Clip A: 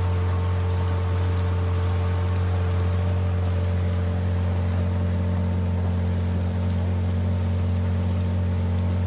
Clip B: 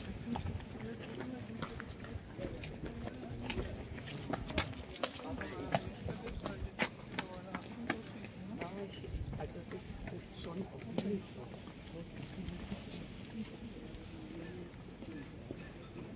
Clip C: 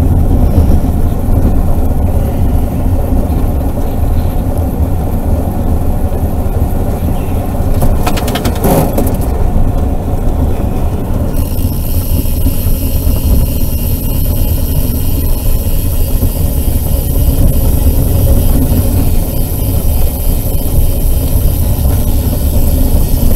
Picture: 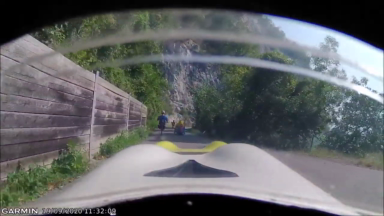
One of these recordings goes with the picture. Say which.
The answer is C